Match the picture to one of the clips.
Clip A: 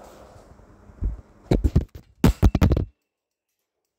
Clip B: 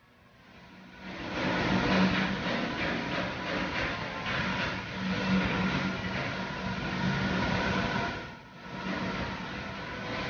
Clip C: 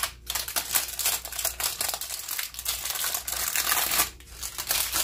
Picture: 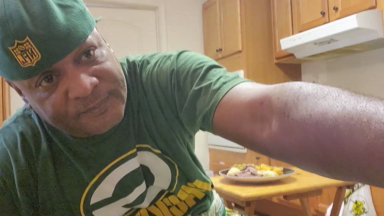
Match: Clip A